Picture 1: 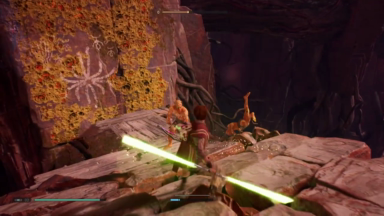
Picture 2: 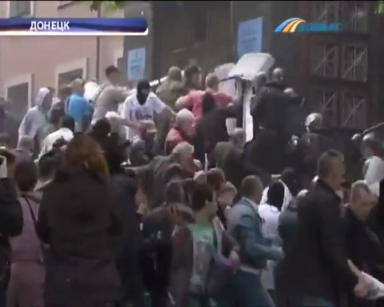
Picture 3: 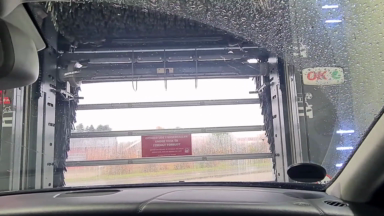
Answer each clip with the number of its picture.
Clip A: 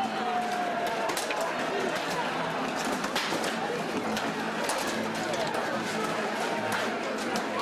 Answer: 2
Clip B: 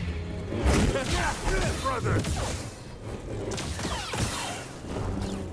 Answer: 1